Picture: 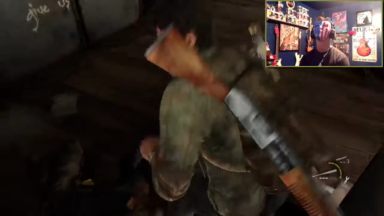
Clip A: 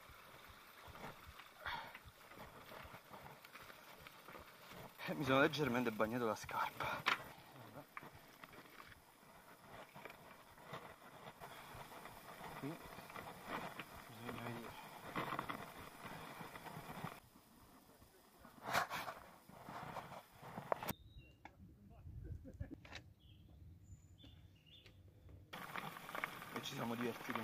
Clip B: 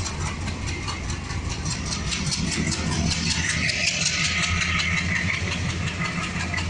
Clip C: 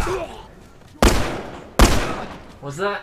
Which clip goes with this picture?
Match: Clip C